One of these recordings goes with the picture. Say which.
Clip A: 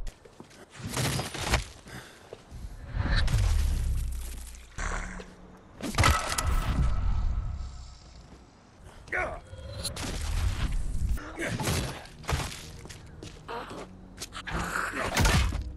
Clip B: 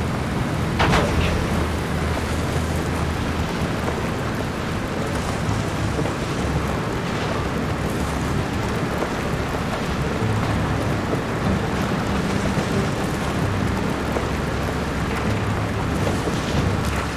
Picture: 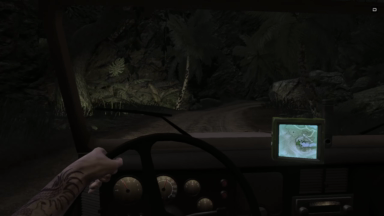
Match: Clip B